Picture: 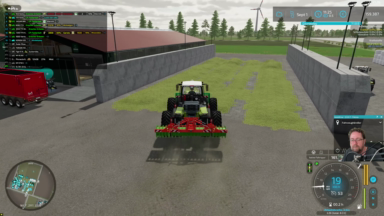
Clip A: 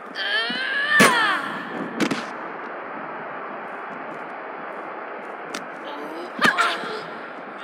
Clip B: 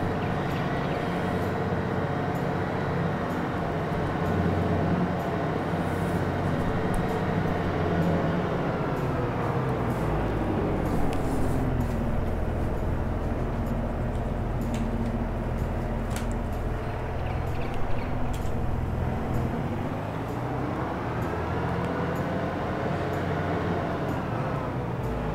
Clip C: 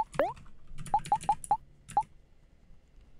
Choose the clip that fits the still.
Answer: B